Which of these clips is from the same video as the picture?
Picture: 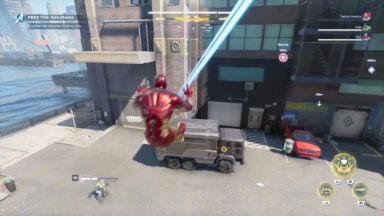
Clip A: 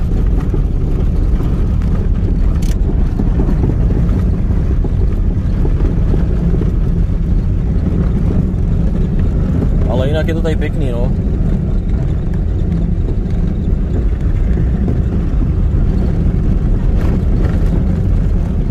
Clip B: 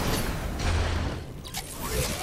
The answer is B